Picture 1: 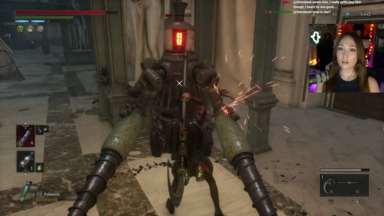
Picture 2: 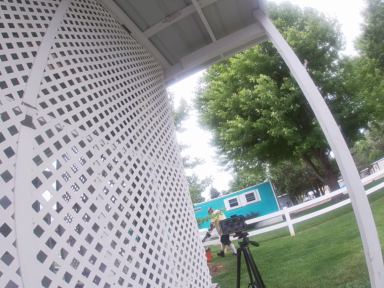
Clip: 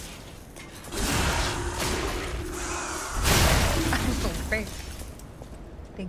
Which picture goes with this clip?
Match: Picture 1